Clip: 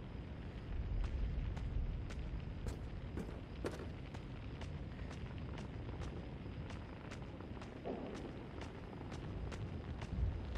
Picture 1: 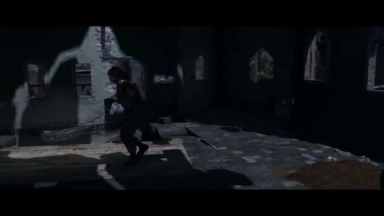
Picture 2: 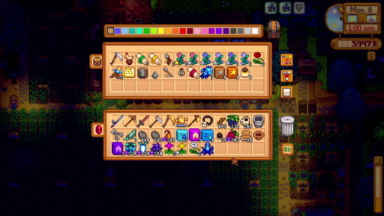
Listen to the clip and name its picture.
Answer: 1